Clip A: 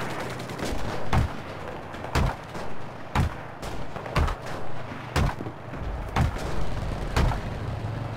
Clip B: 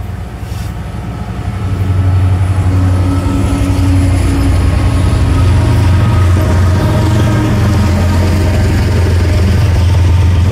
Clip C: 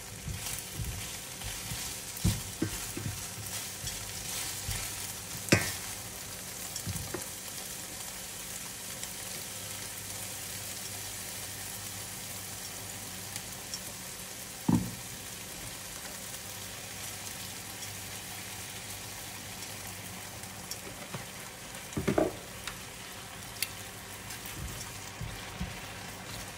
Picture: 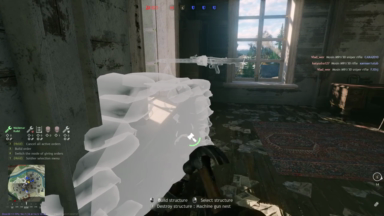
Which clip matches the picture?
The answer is A